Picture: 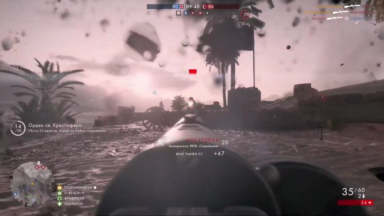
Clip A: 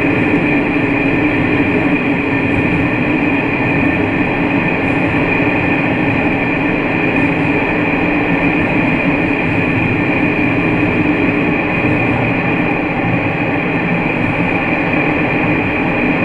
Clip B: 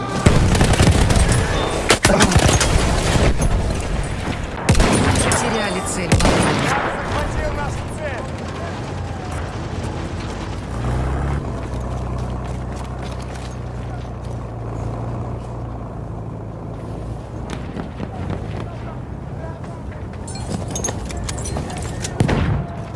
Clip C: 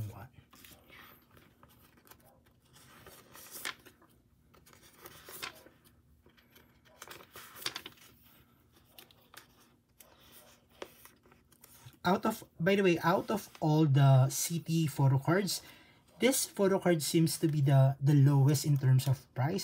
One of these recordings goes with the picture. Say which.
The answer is B